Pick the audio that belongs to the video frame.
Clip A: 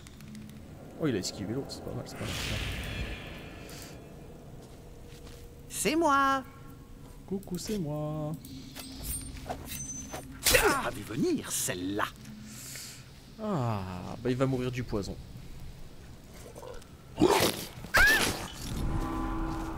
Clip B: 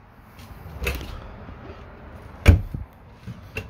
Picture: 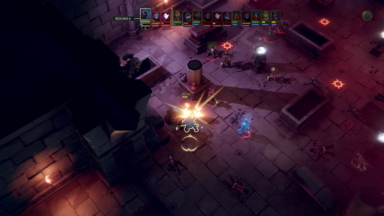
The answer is A